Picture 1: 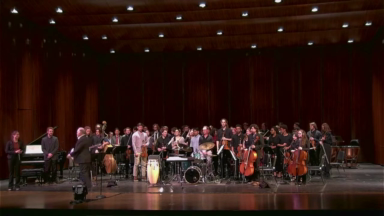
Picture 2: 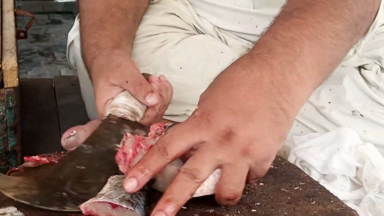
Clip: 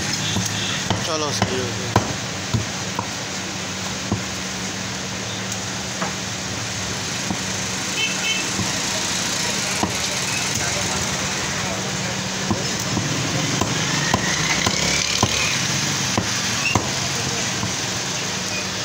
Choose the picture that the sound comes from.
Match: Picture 2